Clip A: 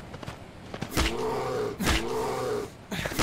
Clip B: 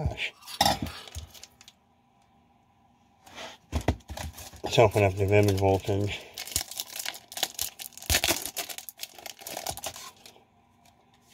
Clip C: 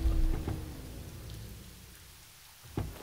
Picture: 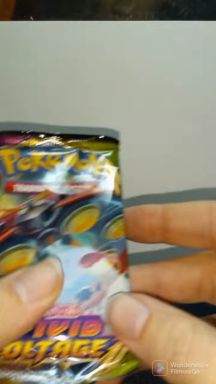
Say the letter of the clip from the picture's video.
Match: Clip B